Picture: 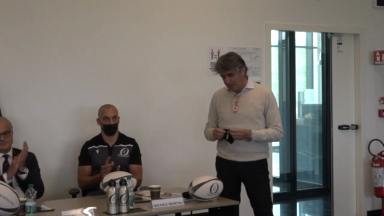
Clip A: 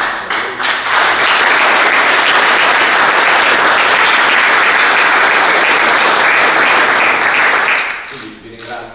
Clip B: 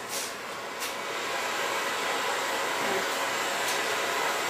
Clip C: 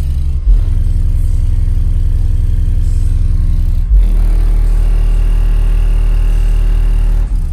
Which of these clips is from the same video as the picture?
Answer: A